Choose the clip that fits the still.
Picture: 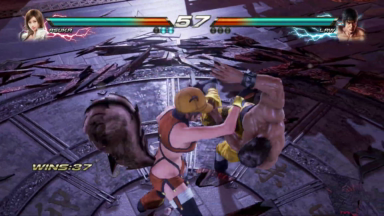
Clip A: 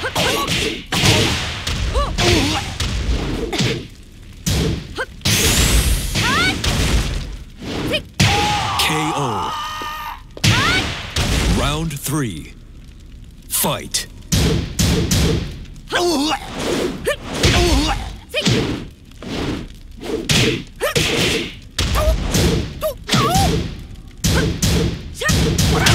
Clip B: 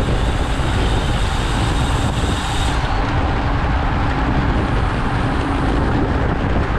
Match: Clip A